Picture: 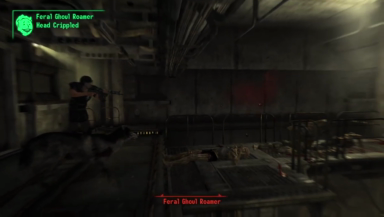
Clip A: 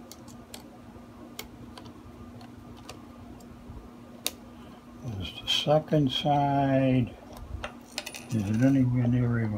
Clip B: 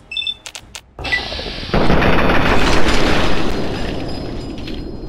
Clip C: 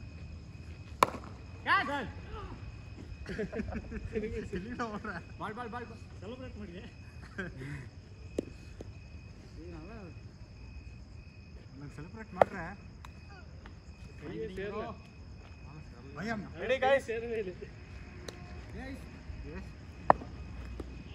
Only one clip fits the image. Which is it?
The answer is B